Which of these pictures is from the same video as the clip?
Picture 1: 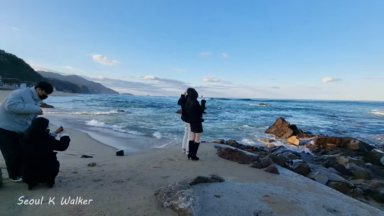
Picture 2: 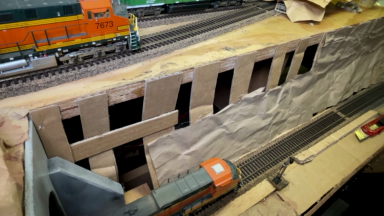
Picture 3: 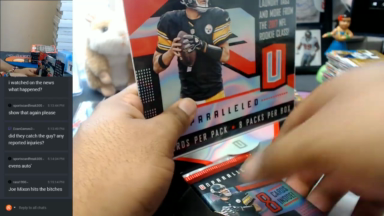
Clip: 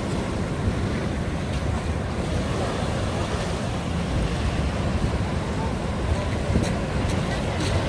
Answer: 1